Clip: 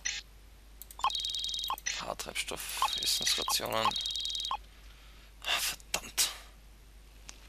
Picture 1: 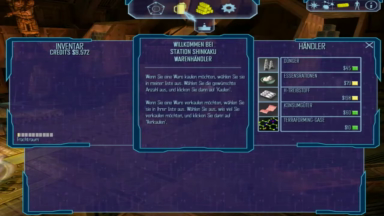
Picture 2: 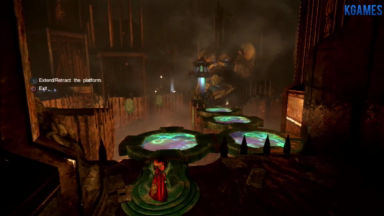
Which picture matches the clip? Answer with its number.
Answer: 1